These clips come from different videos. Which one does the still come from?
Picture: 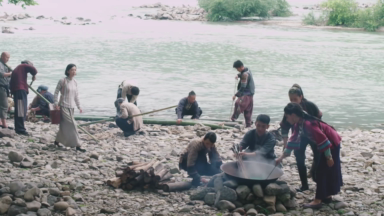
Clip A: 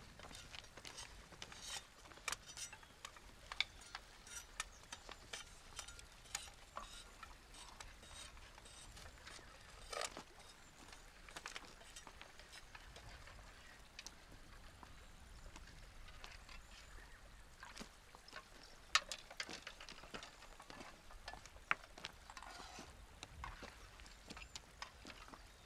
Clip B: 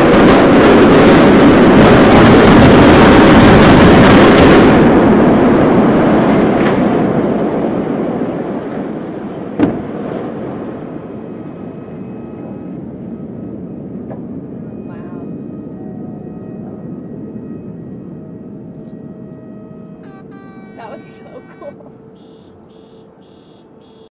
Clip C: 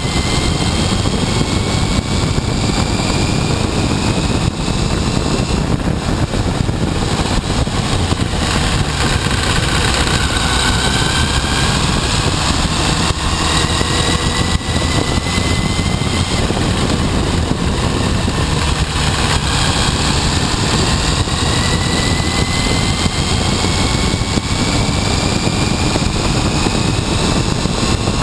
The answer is A